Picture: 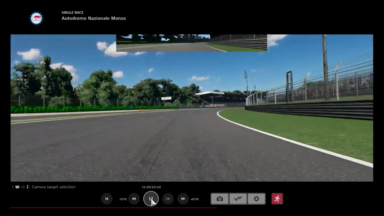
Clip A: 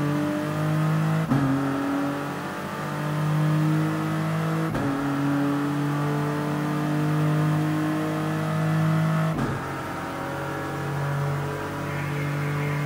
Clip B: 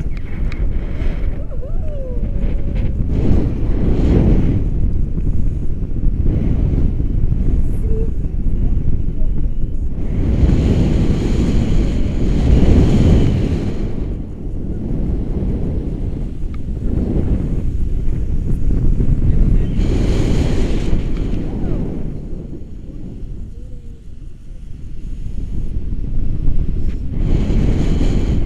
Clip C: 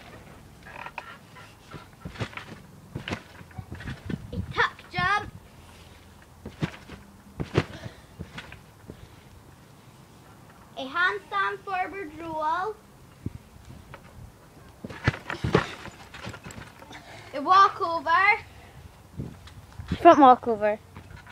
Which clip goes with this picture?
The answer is A